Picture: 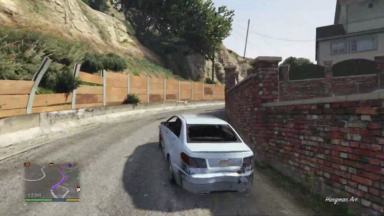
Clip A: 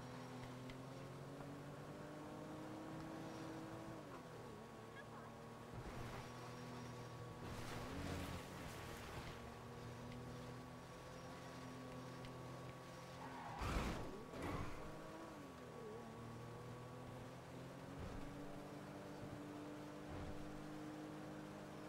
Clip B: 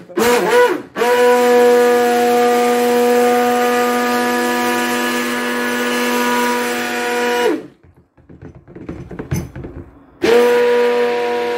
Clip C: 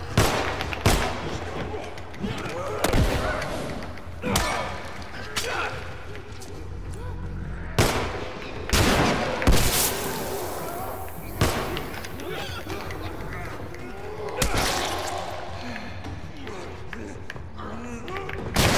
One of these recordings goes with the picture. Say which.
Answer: A